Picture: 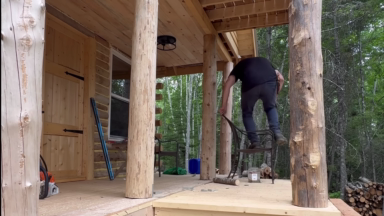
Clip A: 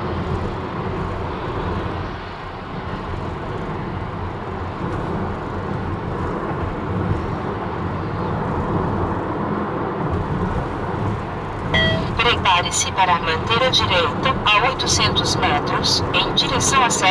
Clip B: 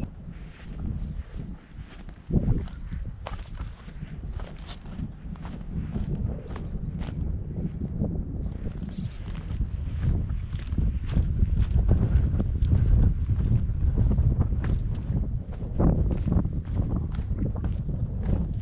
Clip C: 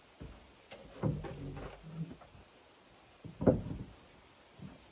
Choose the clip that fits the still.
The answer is C